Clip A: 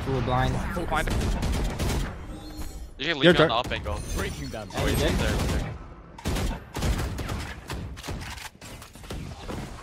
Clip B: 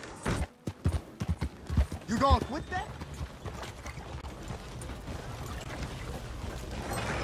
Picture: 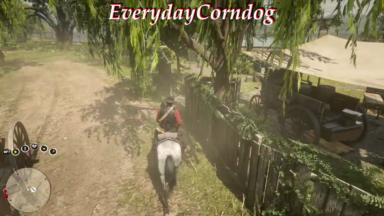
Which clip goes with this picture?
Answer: B